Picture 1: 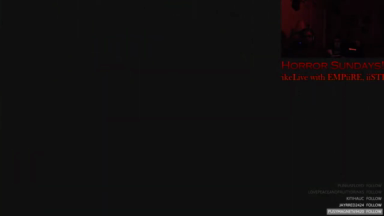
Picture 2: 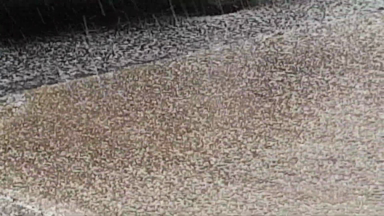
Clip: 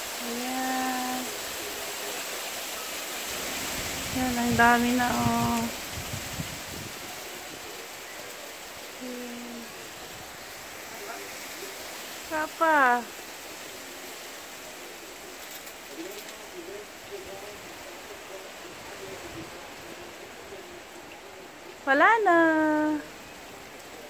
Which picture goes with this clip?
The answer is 2